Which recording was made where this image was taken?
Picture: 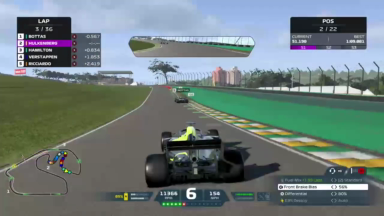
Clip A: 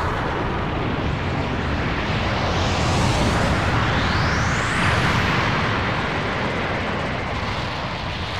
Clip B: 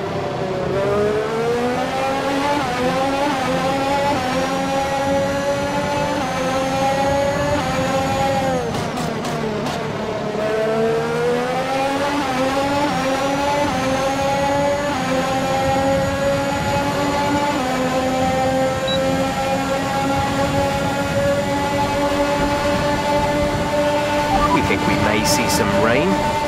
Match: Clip B